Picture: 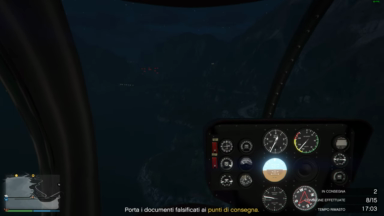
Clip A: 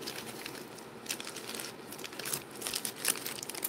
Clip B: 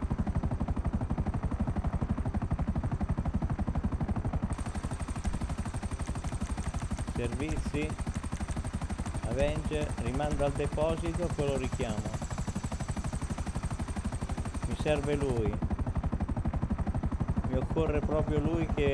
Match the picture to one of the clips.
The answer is B